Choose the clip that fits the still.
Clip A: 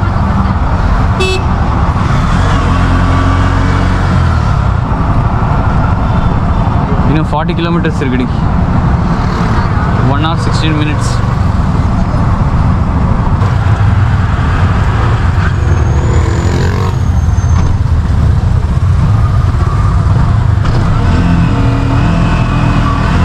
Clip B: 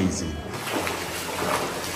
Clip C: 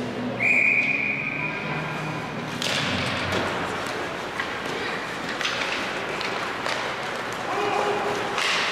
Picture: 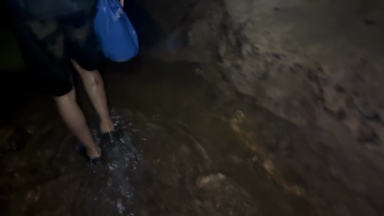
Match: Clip B